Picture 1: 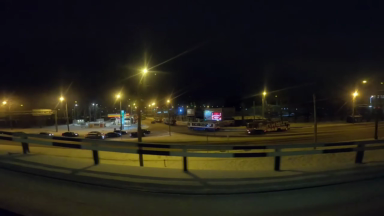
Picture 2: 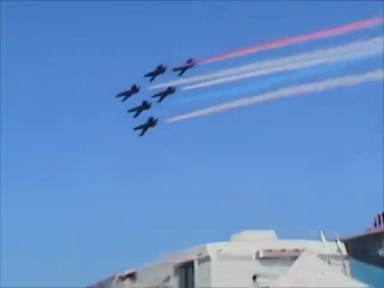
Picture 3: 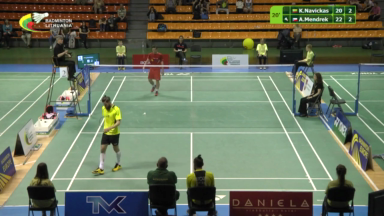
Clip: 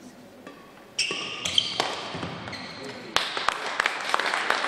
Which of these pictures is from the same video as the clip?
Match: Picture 3